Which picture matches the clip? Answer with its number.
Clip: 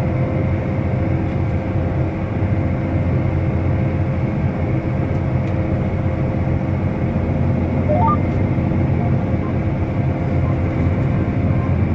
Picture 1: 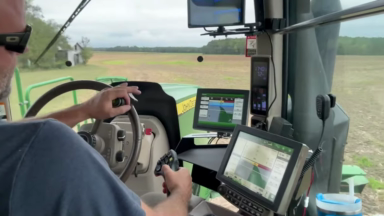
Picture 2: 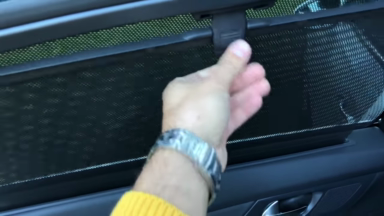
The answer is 1